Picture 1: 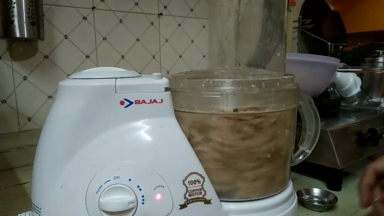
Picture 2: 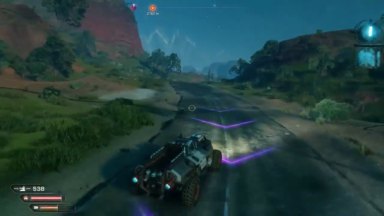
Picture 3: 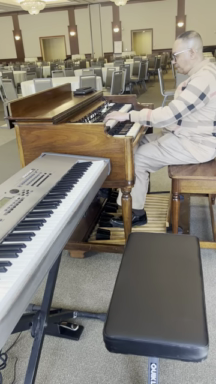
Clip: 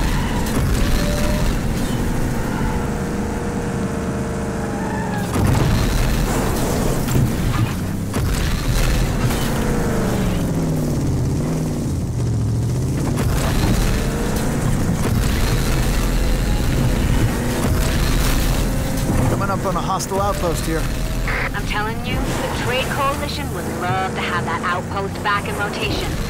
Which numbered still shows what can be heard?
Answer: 2